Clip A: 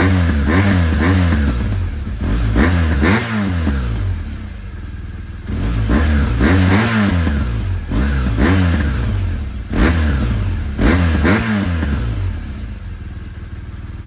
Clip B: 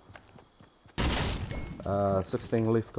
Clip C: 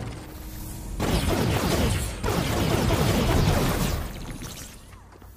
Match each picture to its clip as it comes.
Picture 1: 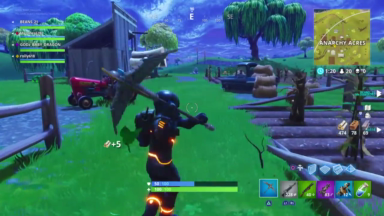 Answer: B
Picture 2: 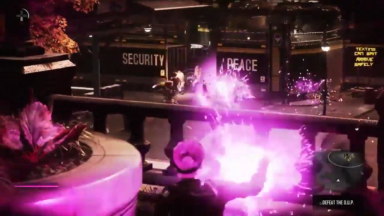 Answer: C